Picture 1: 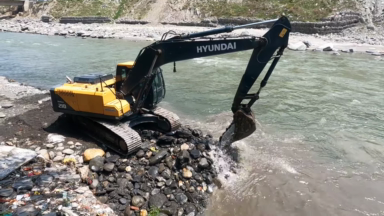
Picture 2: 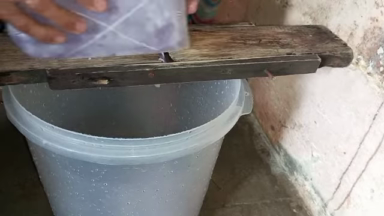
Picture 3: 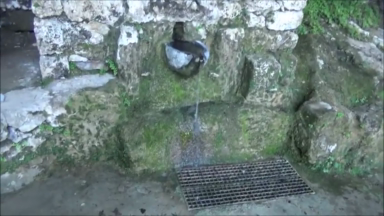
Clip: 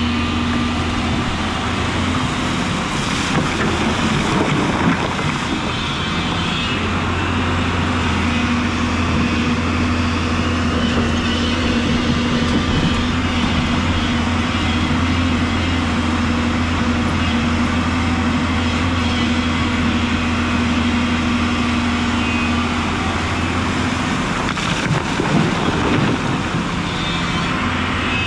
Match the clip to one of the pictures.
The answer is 1